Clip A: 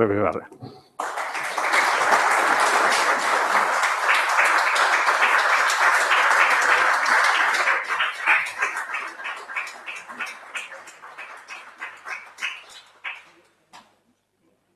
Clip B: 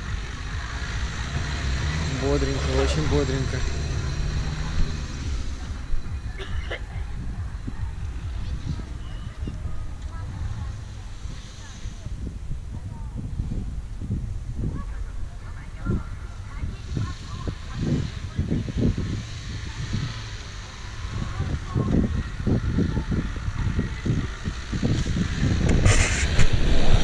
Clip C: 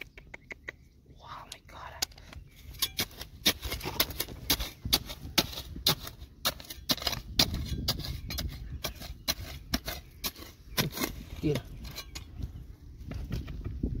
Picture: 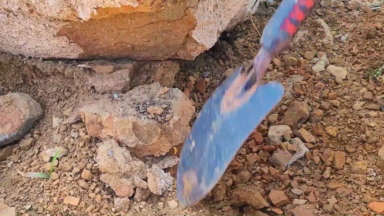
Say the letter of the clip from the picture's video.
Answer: C